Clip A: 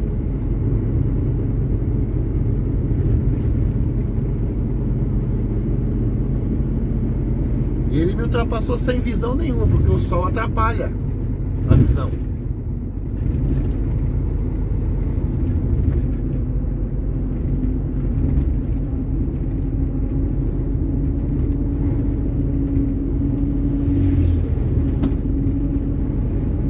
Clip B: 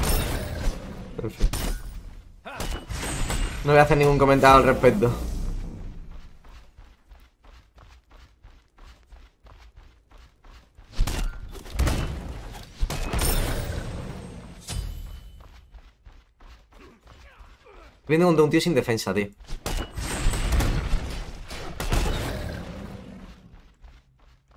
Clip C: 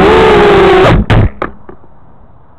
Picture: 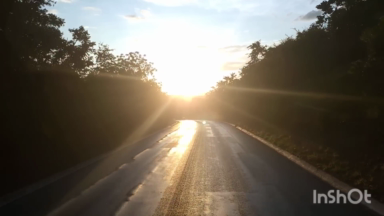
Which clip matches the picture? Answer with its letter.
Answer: A